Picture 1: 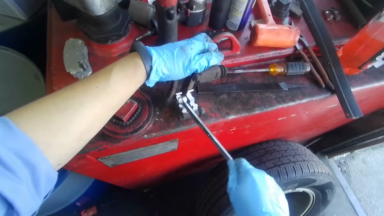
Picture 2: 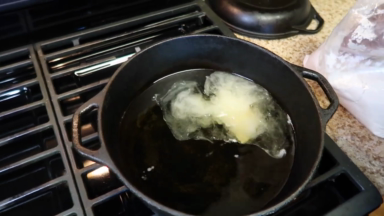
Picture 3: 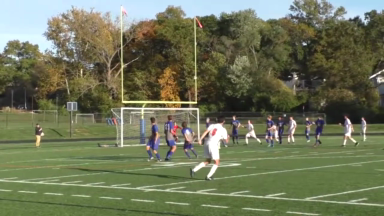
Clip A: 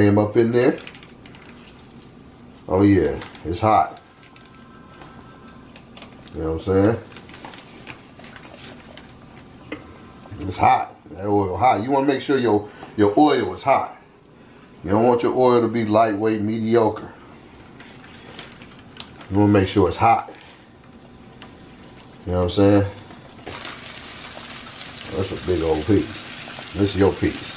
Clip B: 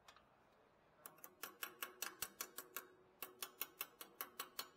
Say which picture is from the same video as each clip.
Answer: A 2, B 1